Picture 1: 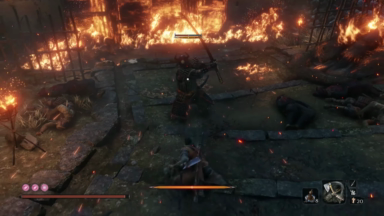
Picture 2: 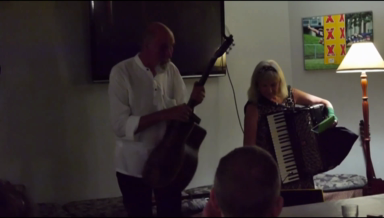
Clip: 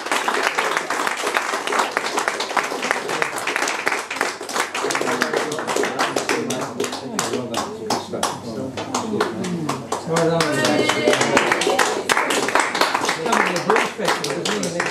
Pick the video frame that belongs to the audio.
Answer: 2